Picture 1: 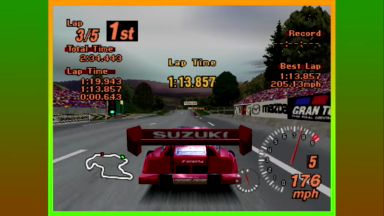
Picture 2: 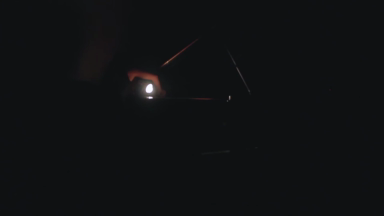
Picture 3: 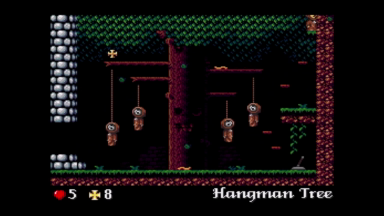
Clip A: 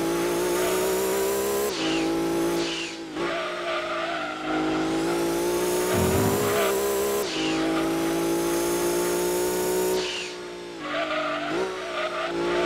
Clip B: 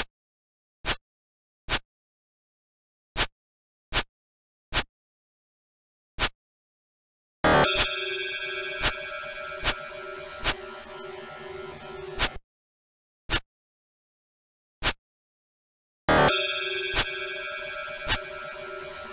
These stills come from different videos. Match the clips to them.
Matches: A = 1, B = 3